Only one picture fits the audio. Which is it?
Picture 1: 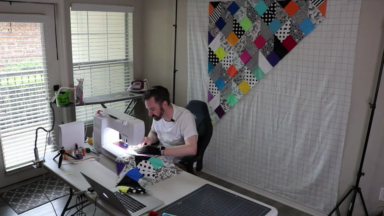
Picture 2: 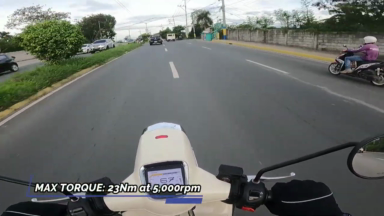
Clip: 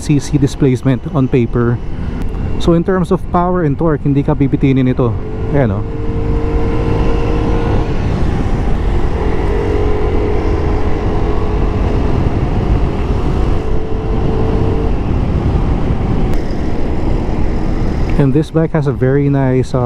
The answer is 2